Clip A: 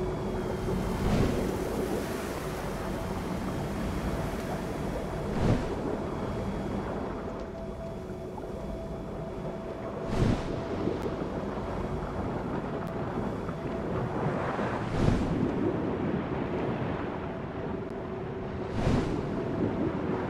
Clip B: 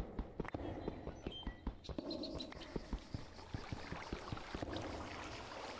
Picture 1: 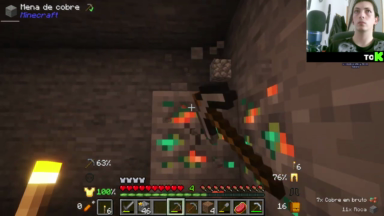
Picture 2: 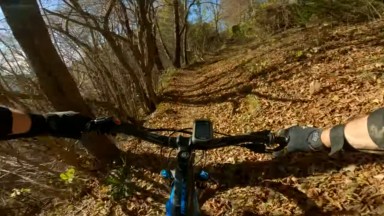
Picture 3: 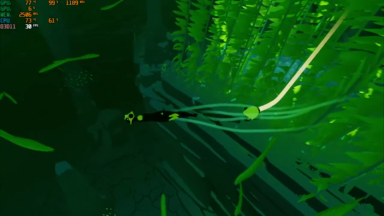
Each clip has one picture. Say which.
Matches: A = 3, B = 1